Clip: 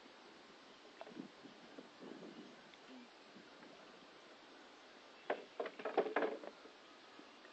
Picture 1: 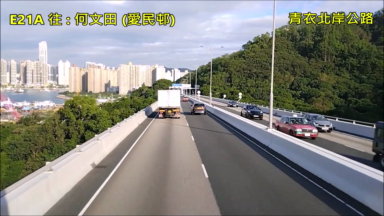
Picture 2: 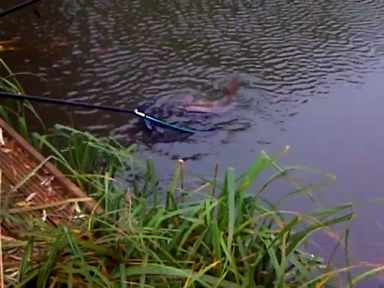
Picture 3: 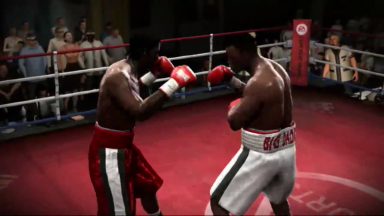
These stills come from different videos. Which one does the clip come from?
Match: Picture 2